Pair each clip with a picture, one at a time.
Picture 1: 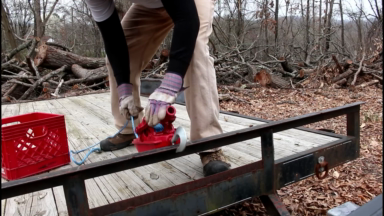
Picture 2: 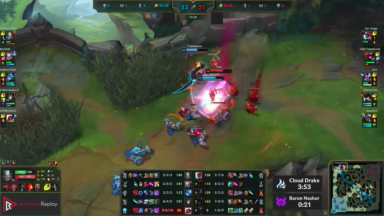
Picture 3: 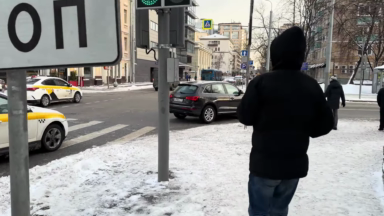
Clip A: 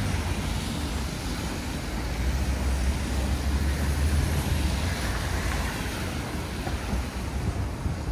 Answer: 3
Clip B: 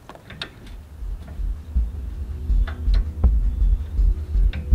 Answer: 1